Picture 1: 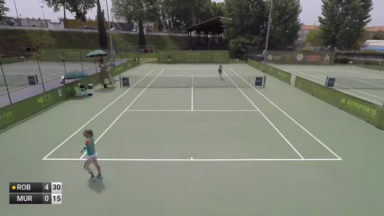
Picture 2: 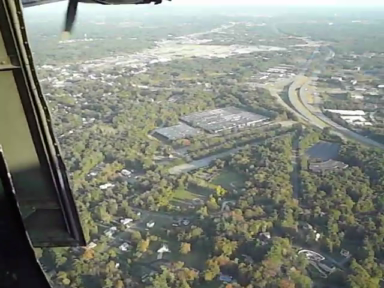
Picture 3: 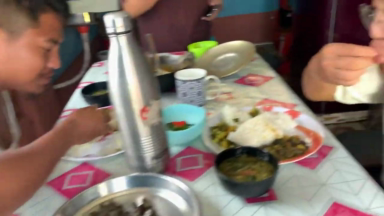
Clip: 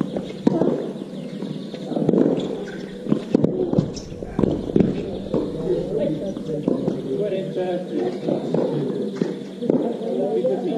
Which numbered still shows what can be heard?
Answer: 1